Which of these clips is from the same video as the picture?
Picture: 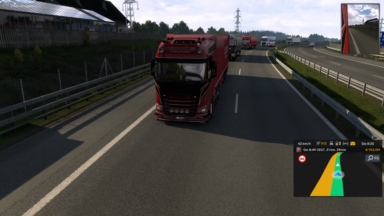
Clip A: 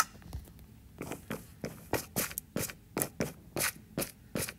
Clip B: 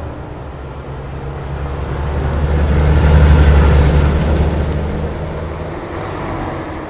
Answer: B